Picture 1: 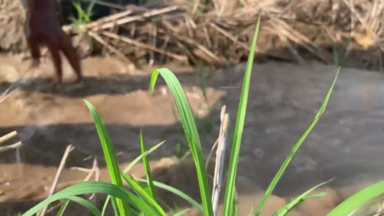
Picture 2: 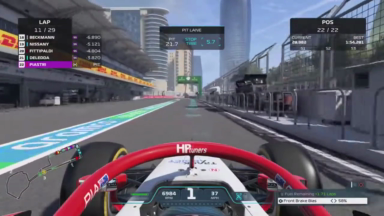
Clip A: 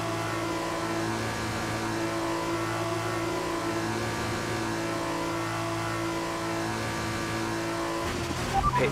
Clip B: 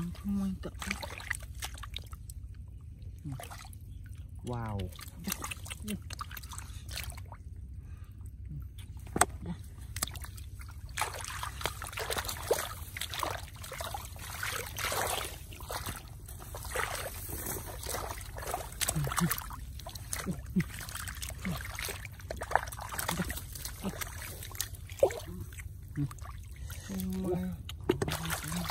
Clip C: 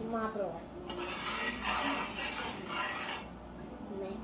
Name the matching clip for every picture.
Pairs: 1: B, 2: A